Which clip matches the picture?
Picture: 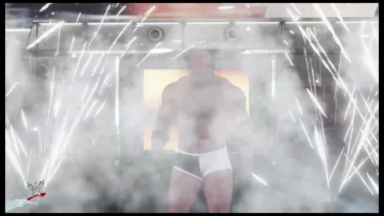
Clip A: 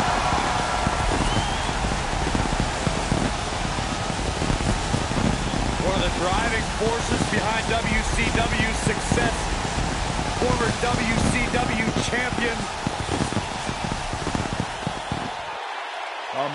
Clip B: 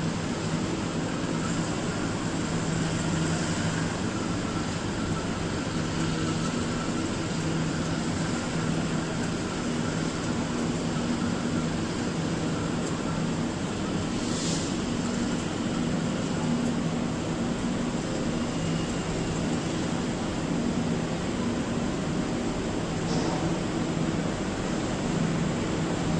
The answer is A